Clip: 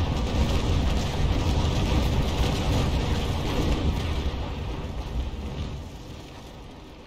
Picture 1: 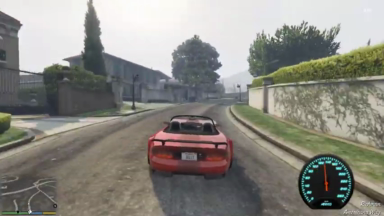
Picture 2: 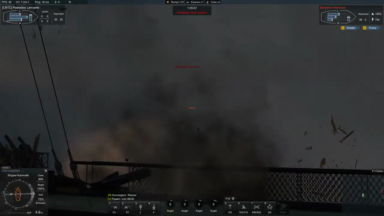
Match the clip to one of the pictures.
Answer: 2